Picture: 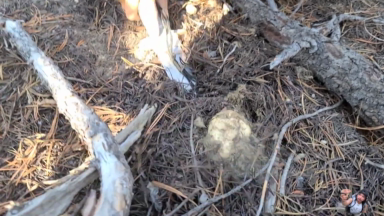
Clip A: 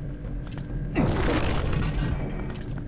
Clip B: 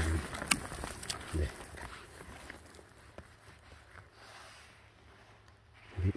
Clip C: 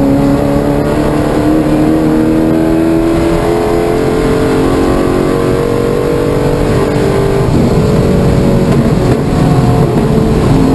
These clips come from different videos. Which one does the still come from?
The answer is B